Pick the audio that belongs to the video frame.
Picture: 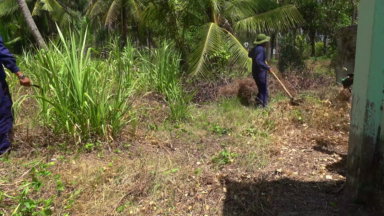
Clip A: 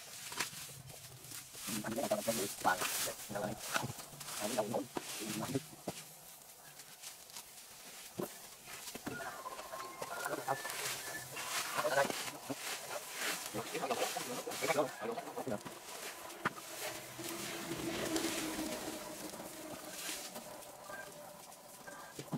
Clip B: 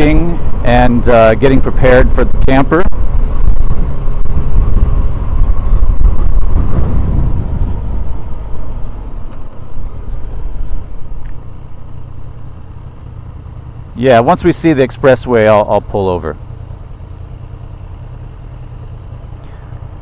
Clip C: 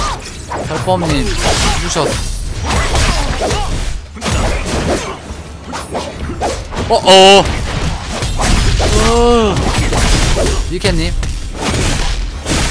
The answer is A